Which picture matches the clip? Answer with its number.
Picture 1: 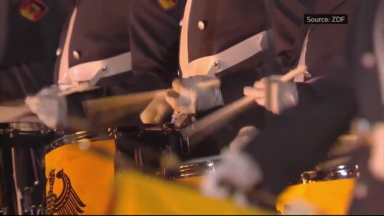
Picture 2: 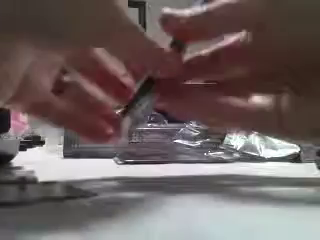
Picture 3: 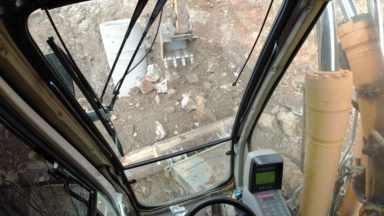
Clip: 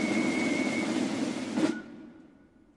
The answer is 1